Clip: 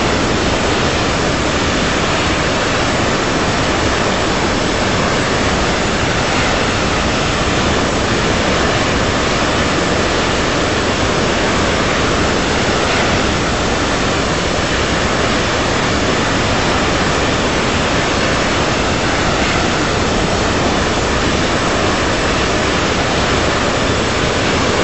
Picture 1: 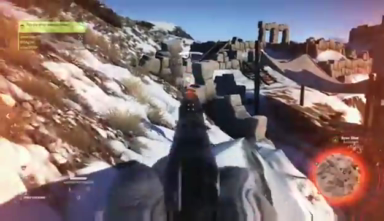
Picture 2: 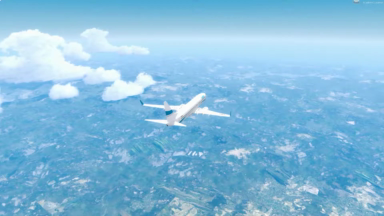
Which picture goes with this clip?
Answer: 2